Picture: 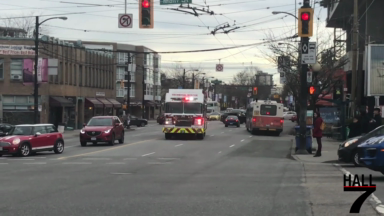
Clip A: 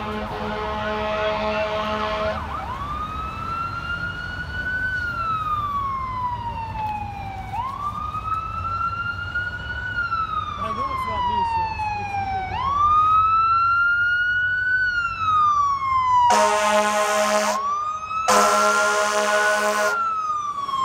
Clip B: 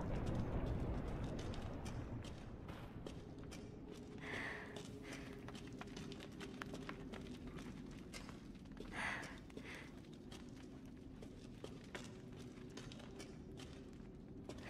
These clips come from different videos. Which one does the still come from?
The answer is A